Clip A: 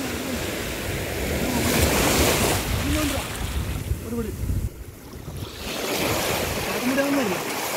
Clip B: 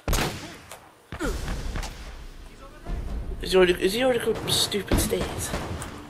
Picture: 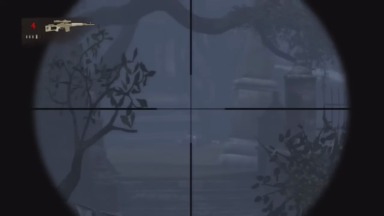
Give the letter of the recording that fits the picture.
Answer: B